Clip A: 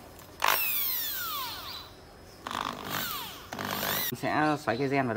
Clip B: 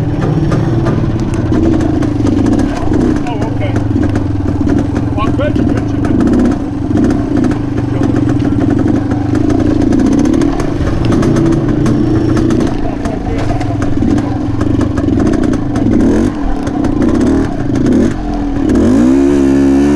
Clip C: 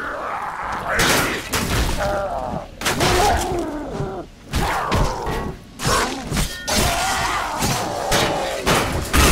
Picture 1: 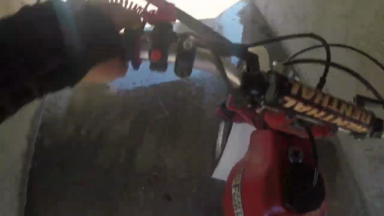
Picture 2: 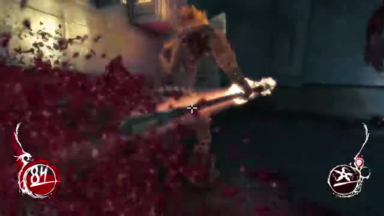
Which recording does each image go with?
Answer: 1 B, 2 C